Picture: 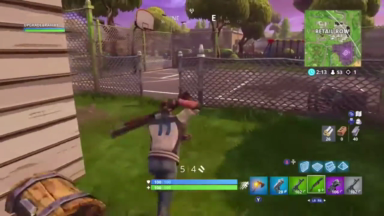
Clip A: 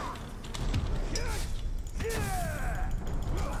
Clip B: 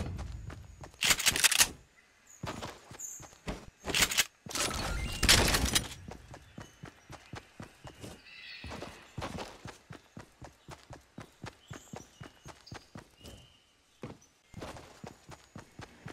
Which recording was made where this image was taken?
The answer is B